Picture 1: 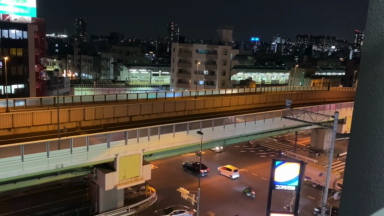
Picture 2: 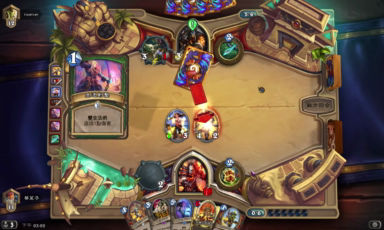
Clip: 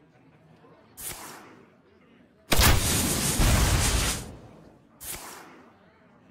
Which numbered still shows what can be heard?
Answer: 2